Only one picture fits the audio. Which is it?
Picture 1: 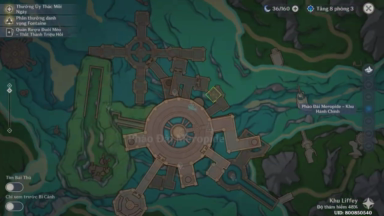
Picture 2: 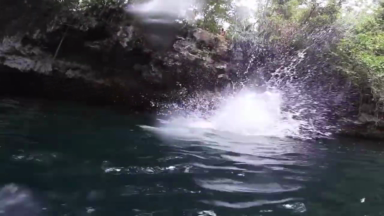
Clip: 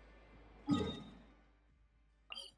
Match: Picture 1